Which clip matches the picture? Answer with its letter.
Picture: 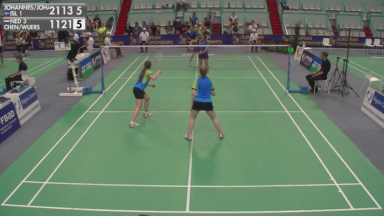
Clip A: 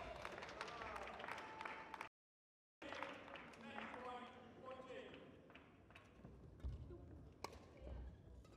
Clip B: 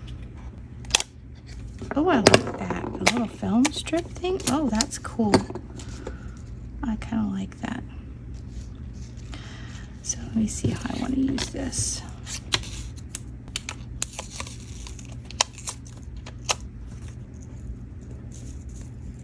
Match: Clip A